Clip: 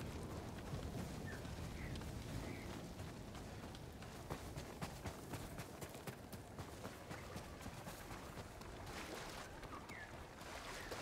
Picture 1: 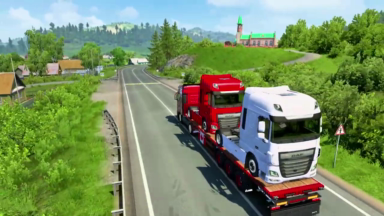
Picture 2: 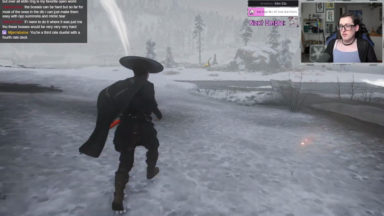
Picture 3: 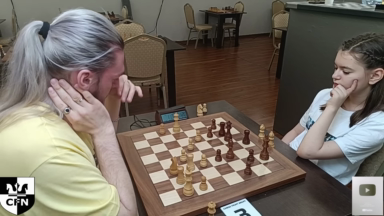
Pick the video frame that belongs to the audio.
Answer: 2